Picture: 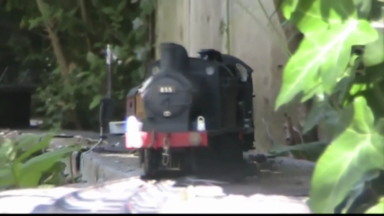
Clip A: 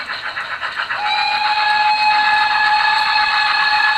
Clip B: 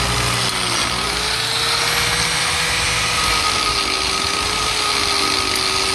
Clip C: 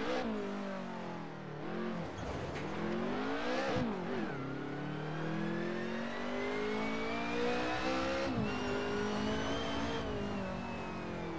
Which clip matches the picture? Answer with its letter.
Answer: A